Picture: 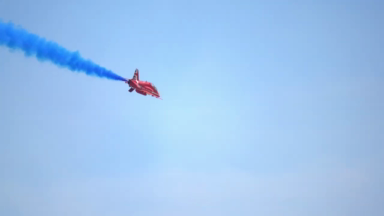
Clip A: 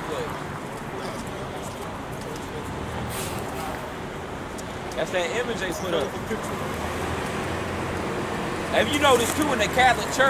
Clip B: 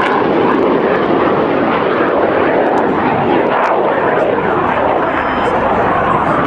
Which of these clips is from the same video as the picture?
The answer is B